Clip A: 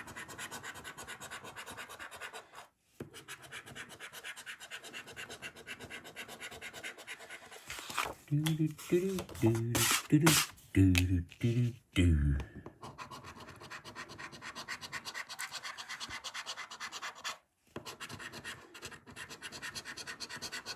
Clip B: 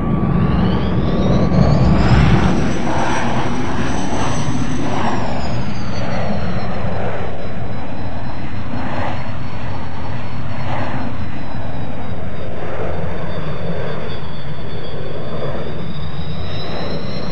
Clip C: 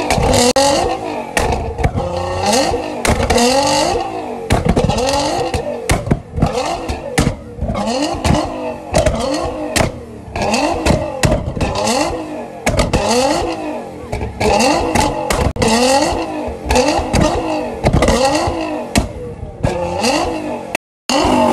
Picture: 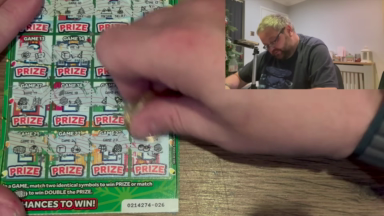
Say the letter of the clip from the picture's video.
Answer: A